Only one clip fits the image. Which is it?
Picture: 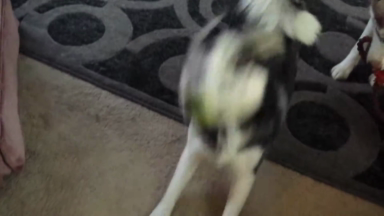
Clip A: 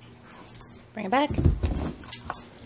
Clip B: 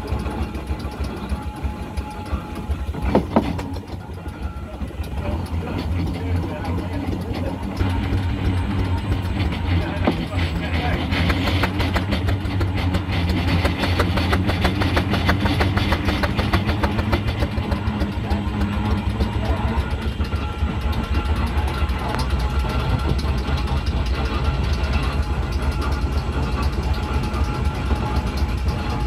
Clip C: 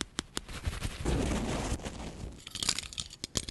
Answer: A